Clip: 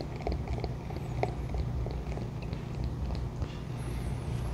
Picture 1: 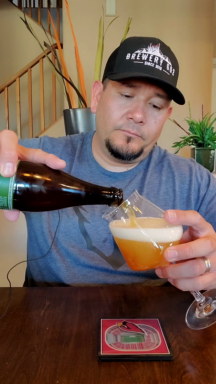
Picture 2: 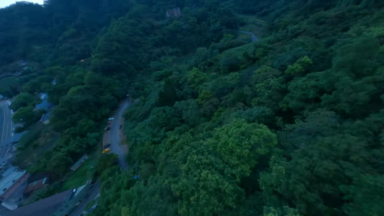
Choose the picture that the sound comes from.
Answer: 1